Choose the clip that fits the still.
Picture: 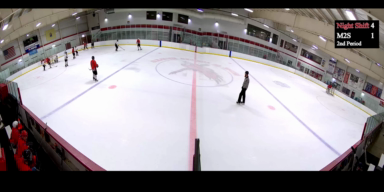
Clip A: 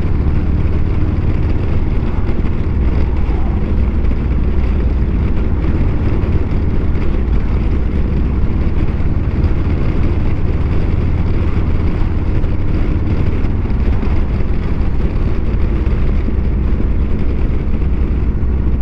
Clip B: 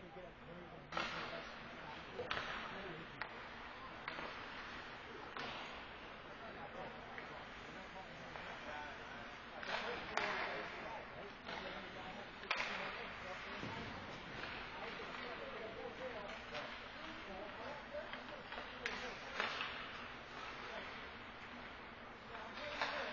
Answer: B